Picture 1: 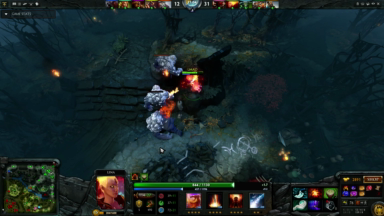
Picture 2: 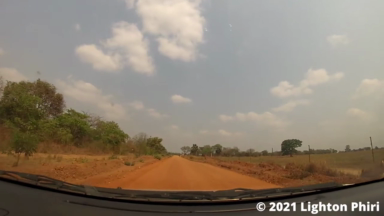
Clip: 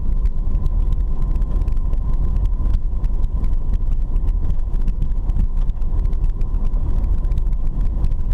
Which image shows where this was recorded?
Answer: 2